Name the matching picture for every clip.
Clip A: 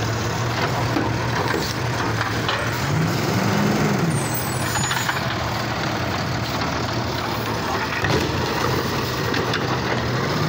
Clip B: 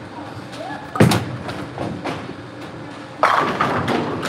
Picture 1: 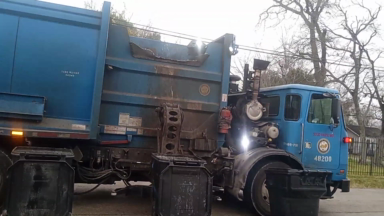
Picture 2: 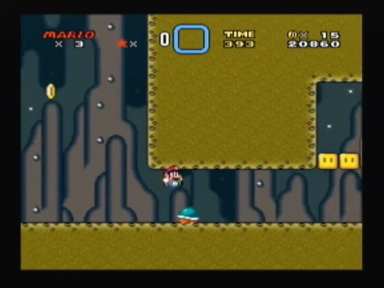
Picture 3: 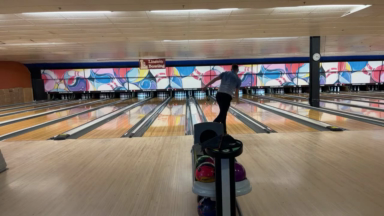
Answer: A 1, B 3